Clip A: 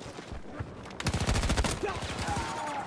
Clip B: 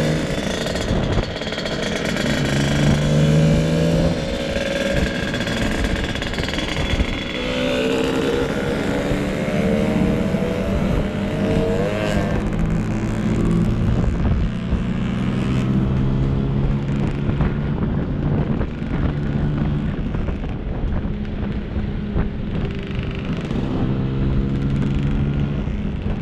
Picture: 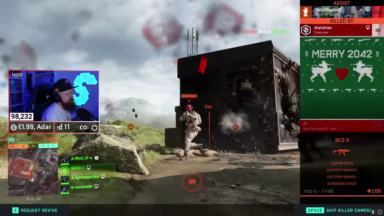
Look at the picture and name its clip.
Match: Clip A